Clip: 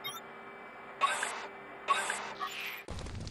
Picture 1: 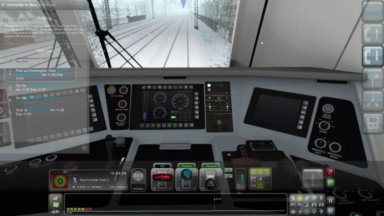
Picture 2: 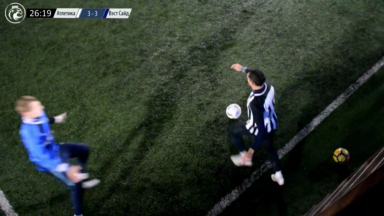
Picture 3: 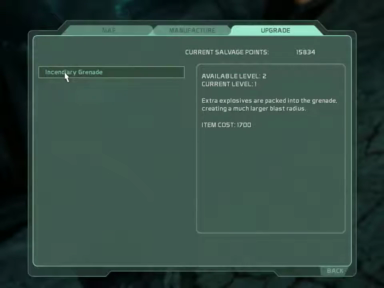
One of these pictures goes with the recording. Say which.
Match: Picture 3